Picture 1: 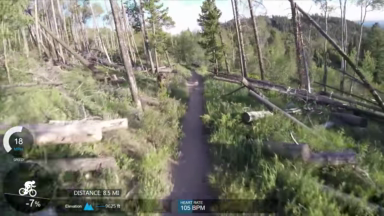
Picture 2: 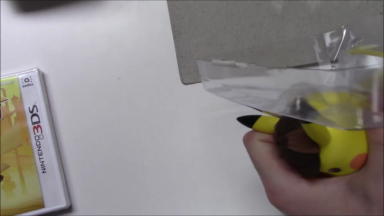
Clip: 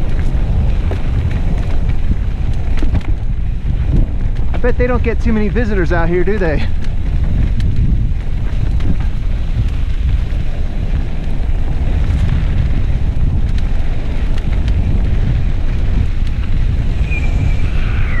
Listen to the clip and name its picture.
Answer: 1